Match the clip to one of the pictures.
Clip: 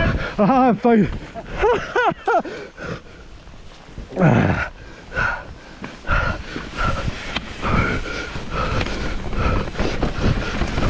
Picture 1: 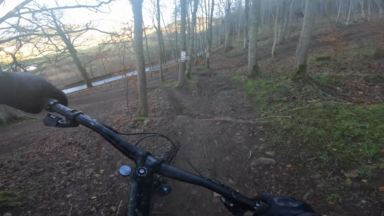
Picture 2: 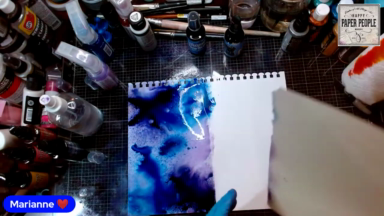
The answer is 1